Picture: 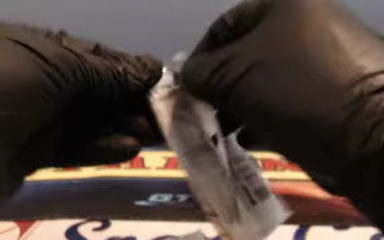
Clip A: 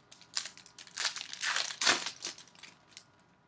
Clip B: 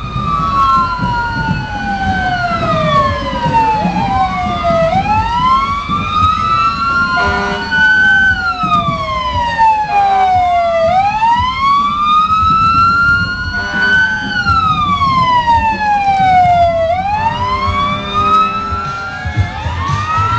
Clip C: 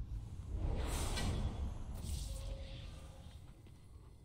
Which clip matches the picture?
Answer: A